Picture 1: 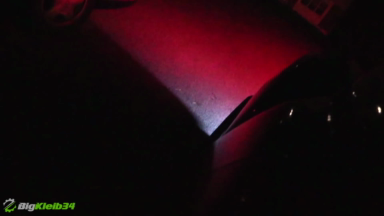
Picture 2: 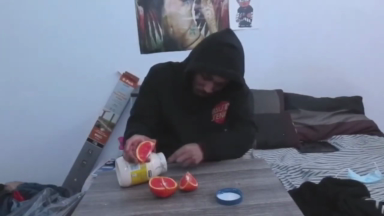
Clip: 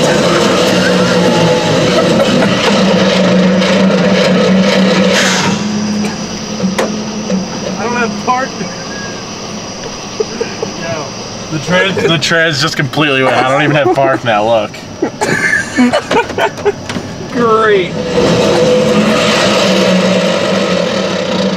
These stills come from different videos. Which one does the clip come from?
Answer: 1